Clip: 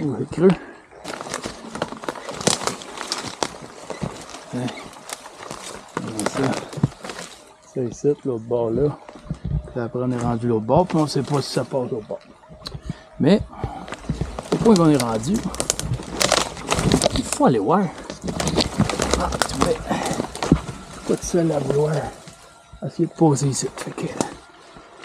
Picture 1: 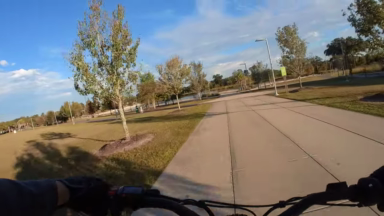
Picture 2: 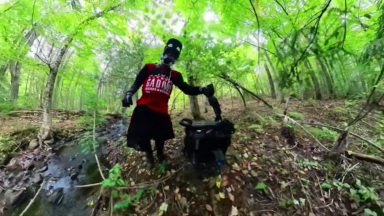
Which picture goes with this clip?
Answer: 2